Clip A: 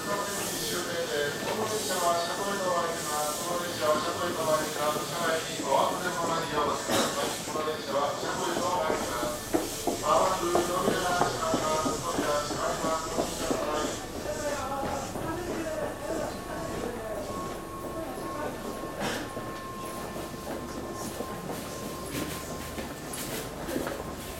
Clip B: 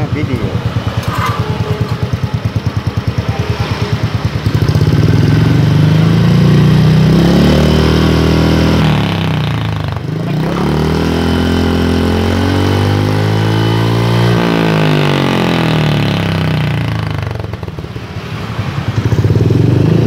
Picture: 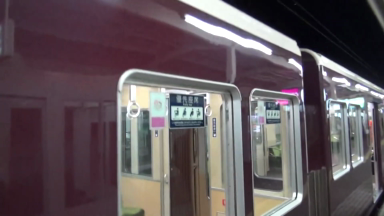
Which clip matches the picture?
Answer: A